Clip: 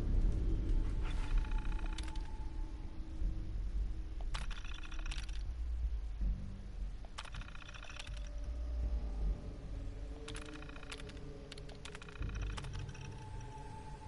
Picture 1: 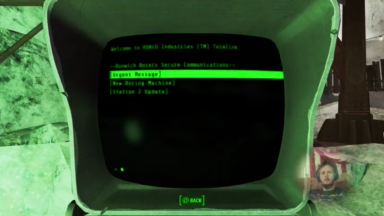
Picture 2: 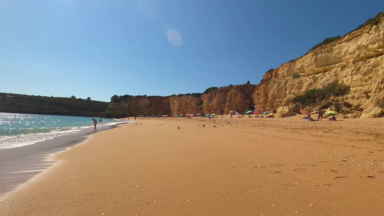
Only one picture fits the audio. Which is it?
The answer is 1